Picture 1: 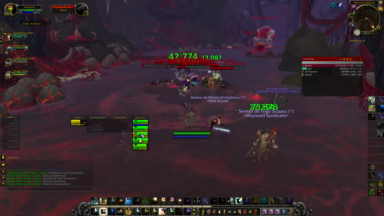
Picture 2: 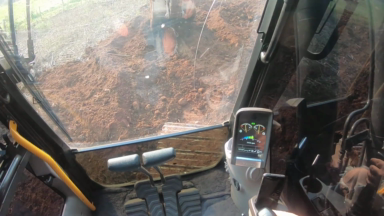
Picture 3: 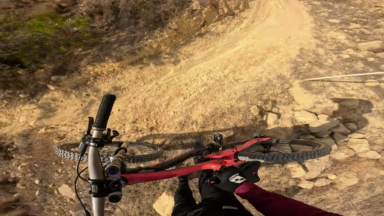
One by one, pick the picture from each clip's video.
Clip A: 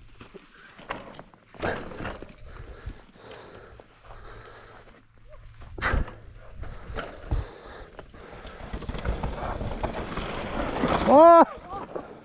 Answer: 3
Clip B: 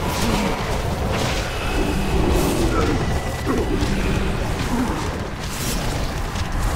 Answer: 1